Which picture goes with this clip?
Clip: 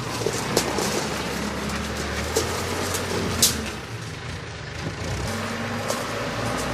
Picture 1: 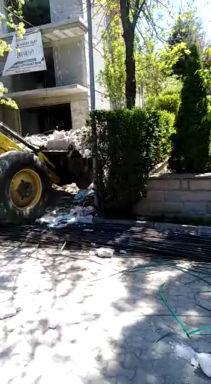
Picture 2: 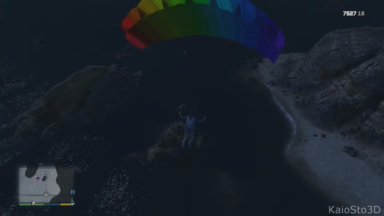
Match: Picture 1